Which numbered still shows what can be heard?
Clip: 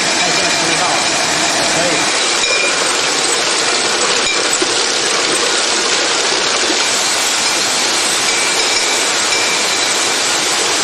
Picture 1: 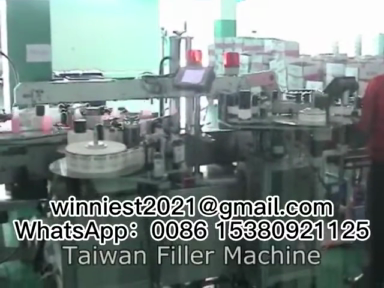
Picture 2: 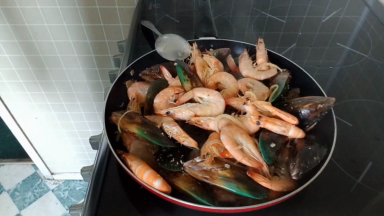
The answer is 1